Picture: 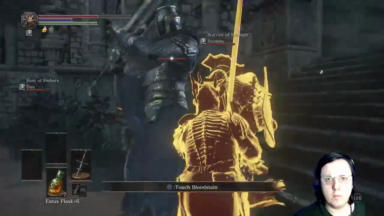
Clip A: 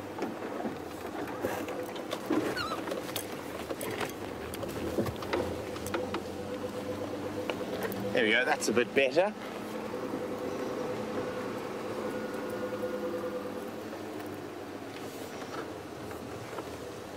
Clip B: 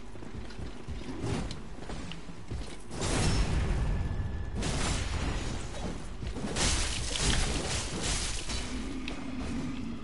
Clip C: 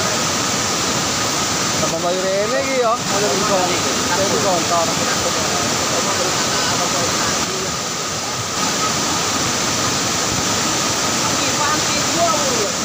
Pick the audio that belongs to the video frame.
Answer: B